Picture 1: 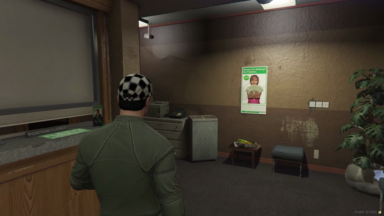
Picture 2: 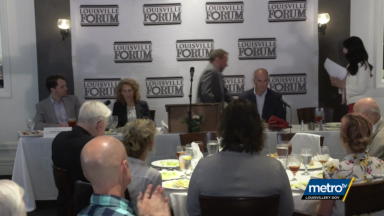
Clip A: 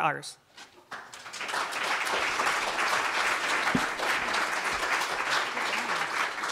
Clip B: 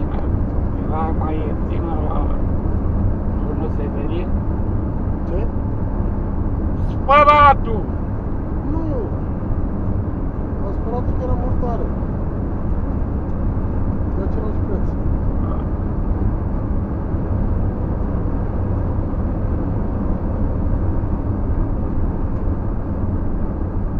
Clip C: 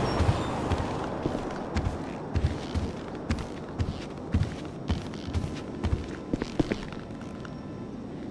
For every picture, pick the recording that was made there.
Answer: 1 C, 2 A